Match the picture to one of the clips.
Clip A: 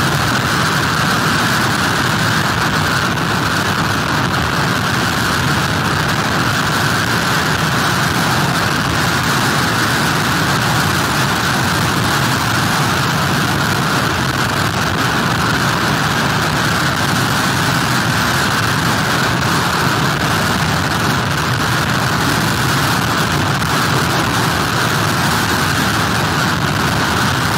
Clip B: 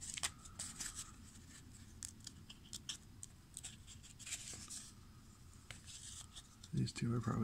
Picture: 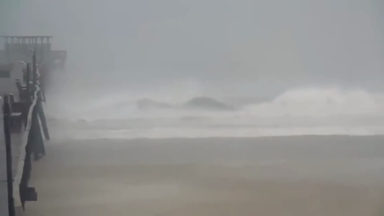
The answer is A